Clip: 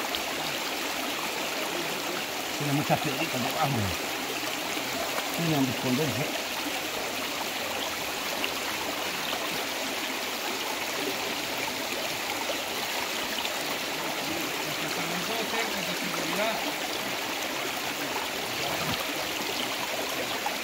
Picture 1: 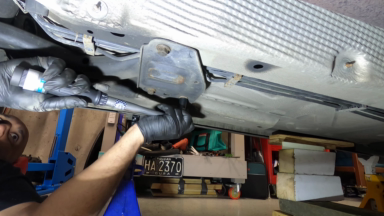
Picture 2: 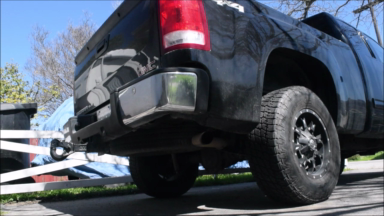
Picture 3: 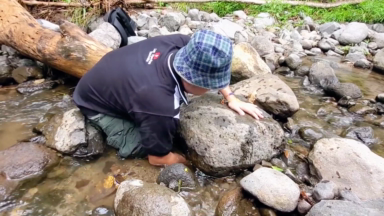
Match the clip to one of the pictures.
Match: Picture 3